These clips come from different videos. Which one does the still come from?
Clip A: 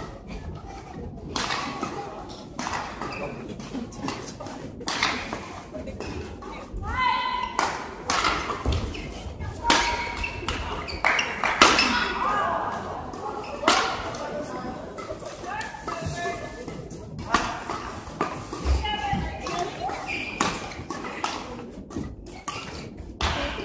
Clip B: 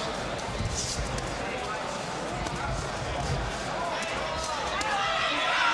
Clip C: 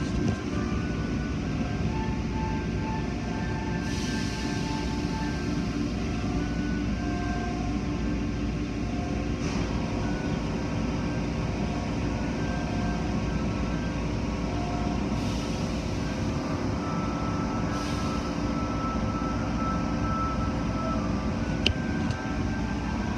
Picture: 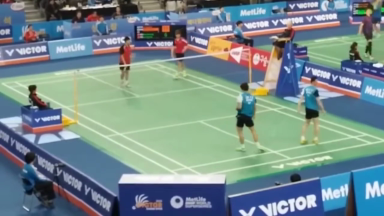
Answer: A